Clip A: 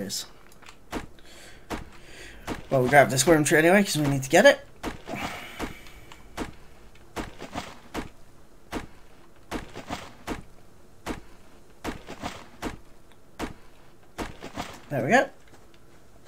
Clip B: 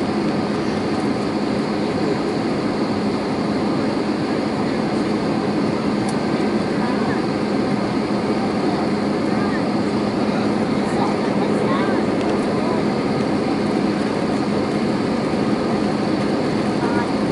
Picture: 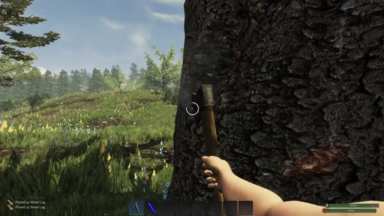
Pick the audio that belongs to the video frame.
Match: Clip A